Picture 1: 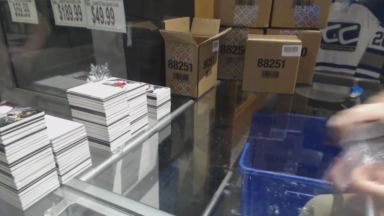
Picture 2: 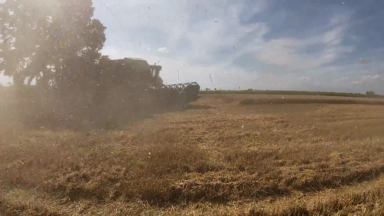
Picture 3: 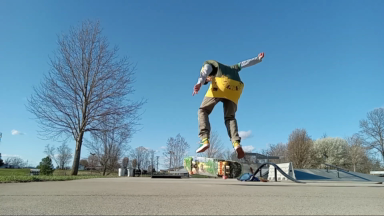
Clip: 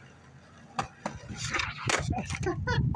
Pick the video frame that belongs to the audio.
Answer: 3